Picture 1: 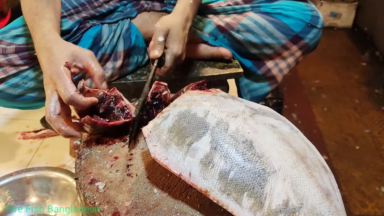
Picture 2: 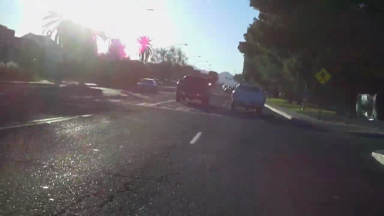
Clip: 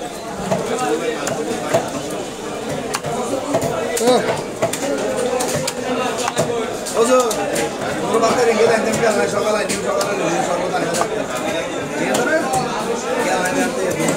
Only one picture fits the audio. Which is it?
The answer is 1